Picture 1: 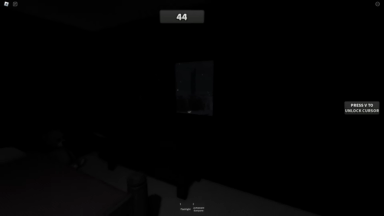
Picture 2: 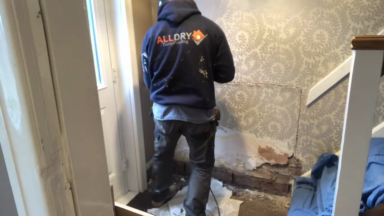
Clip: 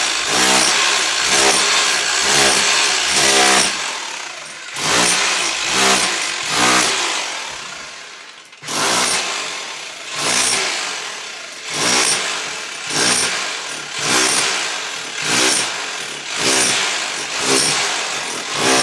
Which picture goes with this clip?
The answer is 2